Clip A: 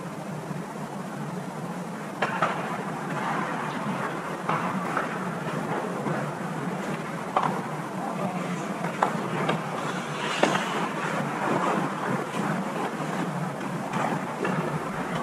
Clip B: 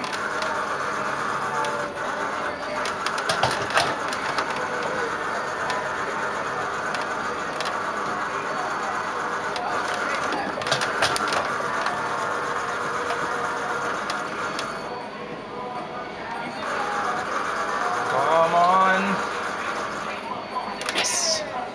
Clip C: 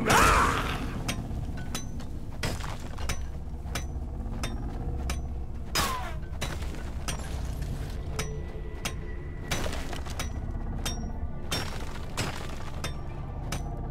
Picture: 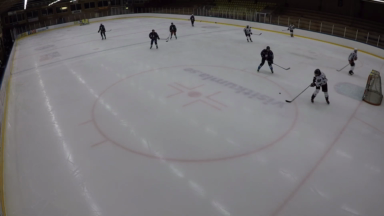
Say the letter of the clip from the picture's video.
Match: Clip A